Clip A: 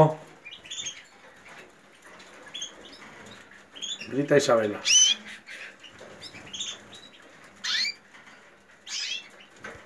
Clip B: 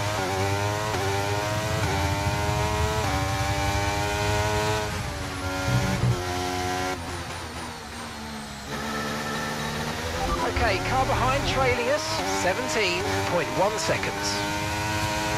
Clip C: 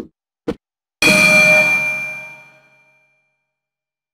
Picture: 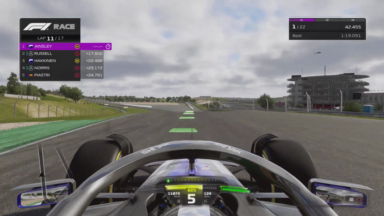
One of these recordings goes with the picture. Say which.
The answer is B